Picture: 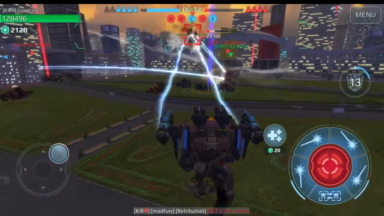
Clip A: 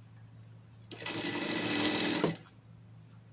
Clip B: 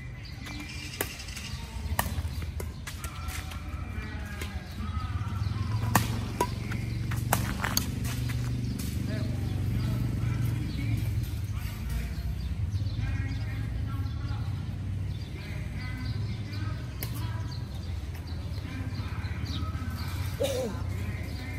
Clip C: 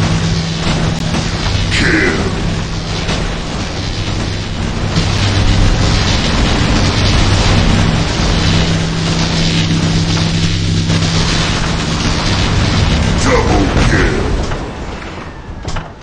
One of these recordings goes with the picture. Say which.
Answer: C